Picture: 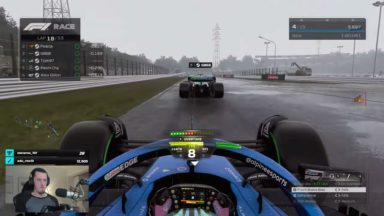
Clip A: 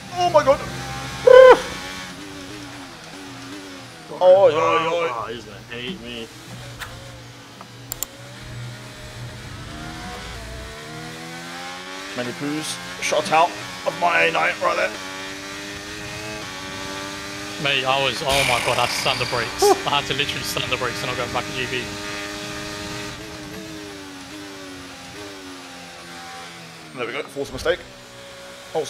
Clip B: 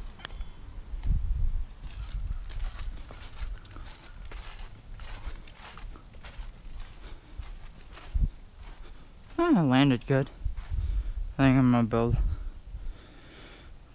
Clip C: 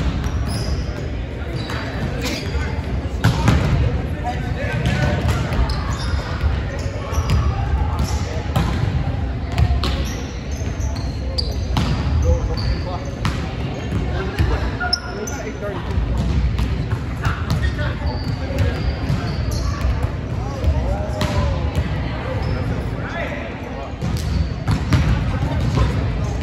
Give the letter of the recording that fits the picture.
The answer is A